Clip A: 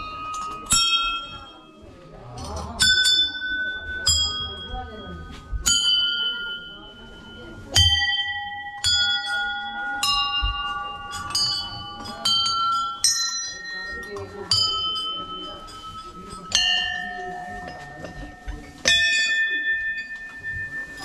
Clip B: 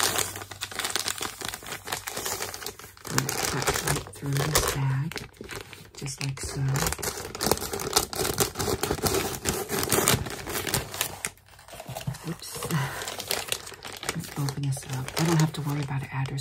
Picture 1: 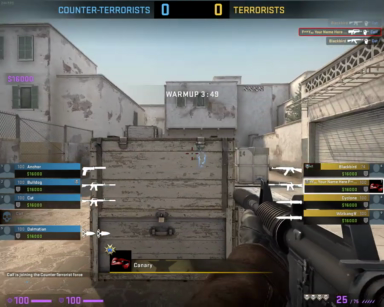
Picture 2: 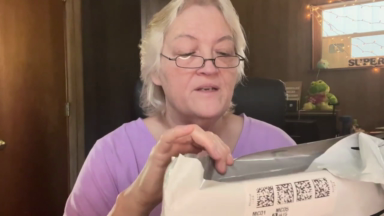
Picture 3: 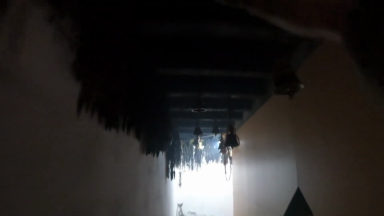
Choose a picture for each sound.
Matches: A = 3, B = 2